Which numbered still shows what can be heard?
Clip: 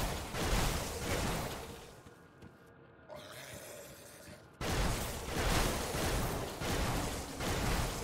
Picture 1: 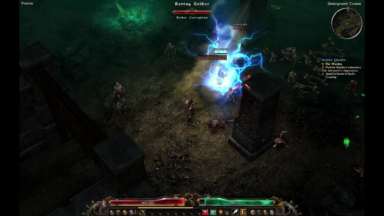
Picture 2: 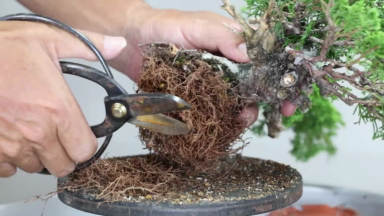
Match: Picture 1